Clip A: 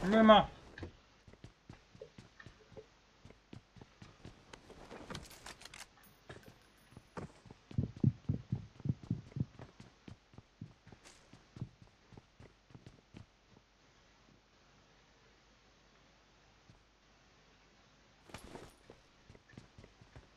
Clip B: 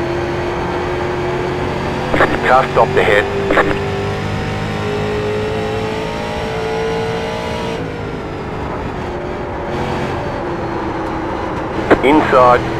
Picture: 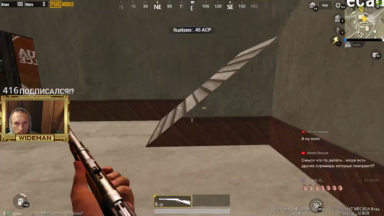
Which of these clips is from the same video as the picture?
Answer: A